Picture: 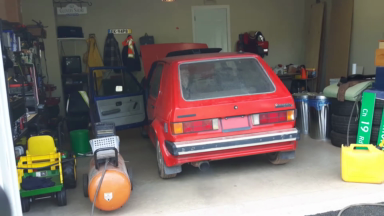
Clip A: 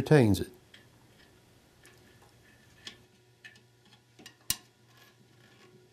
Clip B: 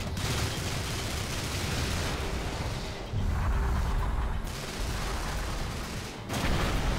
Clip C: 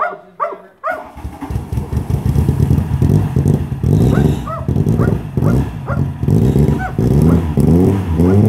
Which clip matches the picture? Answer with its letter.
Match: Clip C